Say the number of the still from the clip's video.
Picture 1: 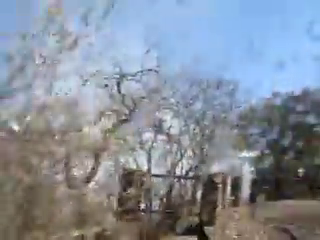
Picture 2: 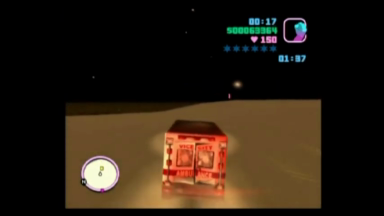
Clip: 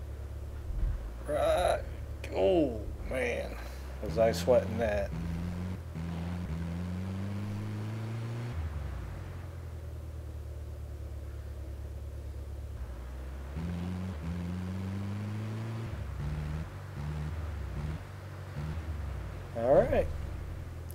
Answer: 2